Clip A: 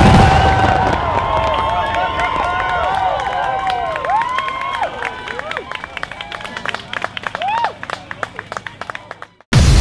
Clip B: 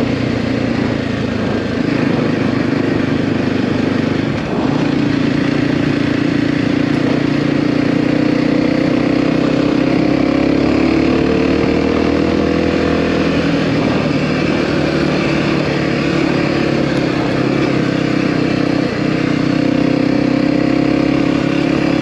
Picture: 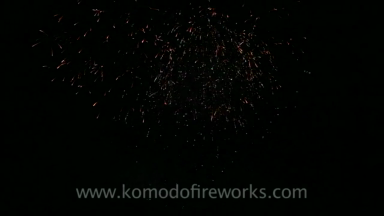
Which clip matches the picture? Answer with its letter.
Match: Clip A